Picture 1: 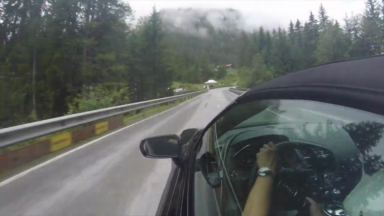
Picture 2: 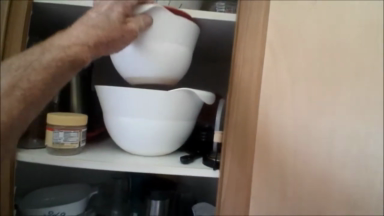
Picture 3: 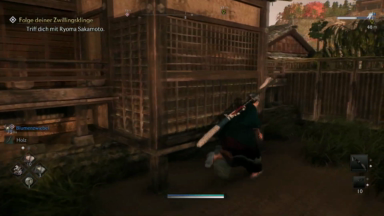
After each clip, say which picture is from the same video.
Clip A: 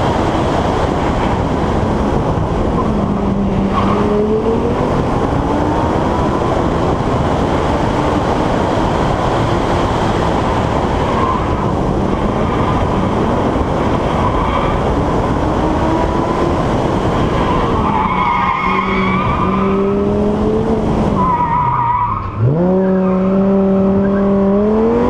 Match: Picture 1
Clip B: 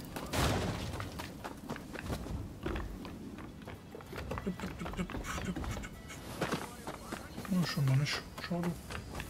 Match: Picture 3